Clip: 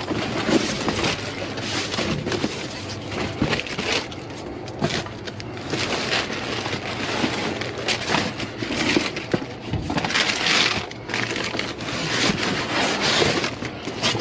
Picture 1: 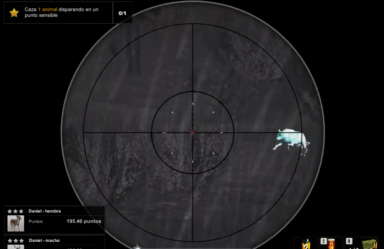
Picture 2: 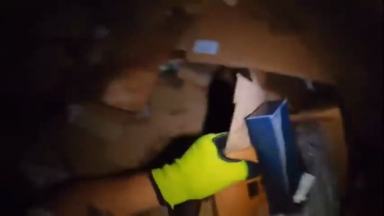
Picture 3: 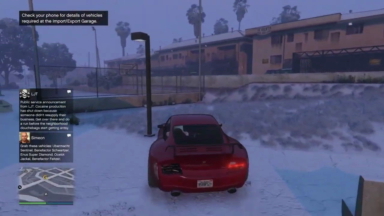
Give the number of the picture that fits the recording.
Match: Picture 2